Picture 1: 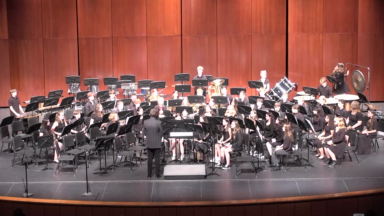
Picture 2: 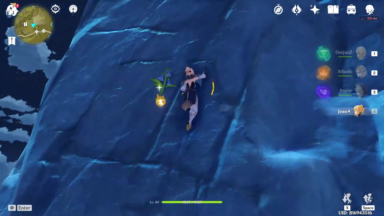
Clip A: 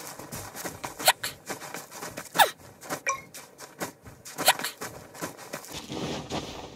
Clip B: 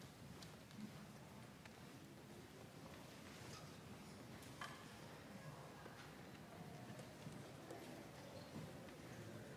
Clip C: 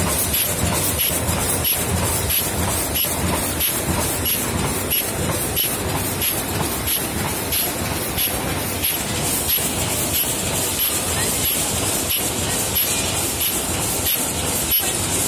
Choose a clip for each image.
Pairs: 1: B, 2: A